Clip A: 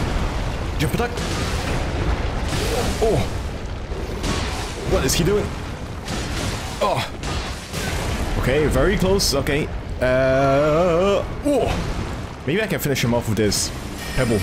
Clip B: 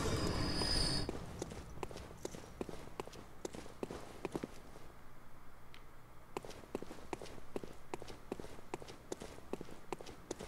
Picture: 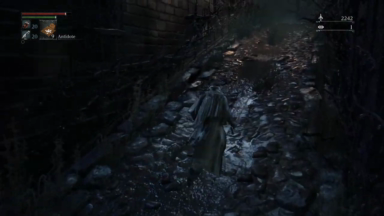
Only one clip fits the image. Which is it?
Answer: B